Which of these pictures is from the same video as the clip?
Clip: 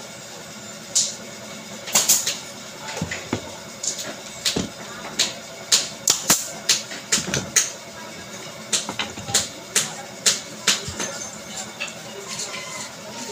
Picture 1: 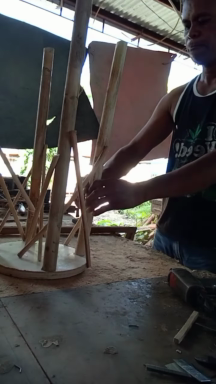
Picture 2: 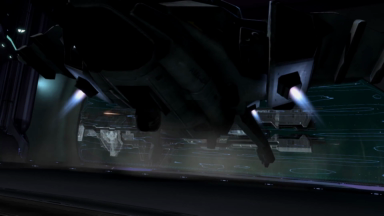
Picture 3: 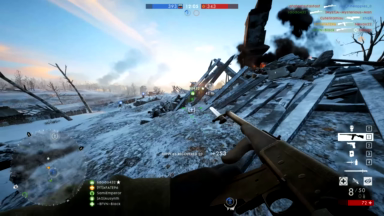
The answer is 1